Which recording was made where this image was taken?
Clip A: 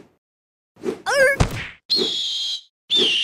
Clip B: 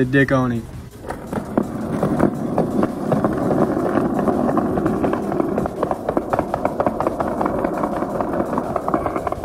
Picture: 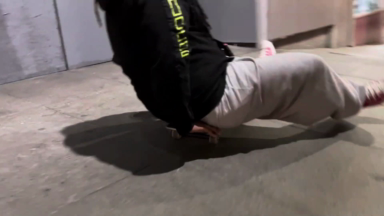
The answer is B